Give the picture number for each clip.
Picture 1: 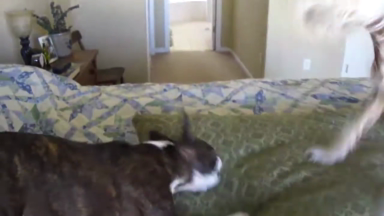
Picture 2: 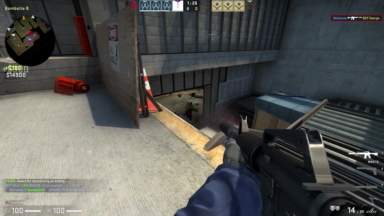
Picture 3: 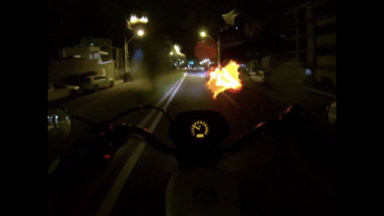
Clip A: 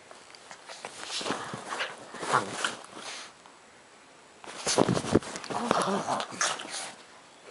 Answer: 1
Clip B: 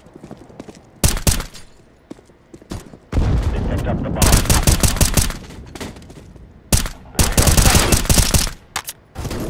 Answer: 2